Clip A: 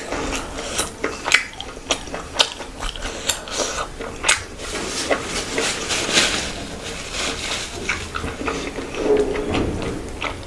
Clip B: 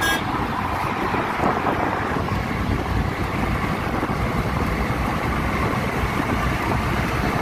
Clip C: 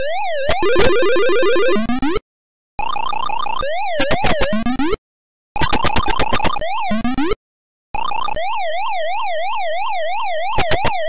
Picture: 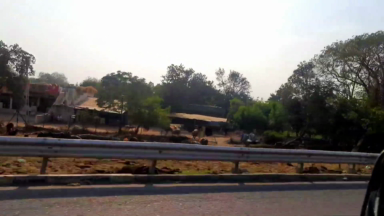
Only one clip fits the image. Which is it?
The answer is B